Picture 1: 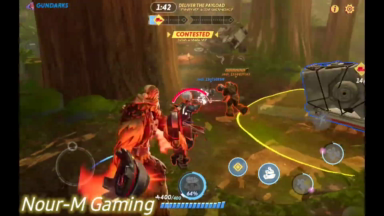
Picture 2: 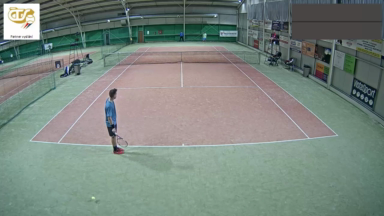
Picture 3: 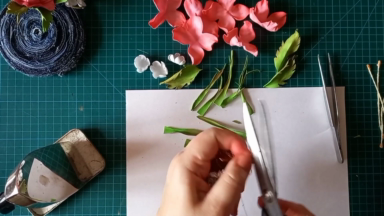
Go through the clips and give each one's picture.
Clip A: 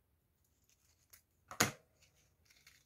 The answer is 3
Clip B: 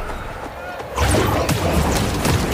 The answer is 1